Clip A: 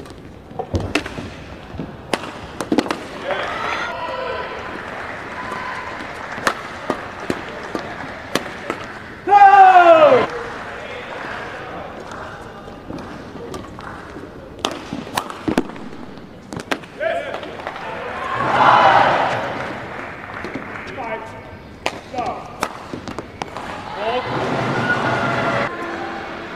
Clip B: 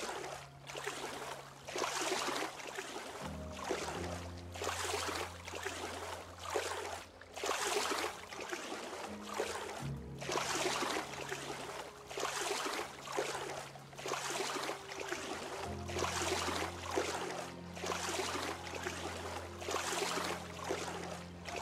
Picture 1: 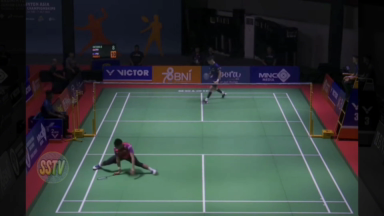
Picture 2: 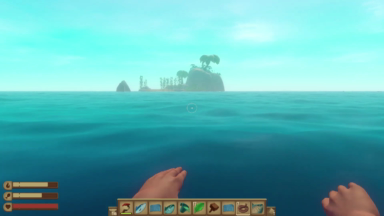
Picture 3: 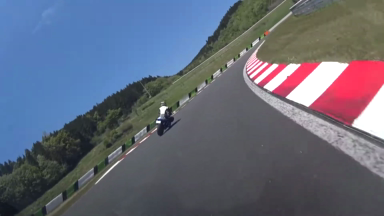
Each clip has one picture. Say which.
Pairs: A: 1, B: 2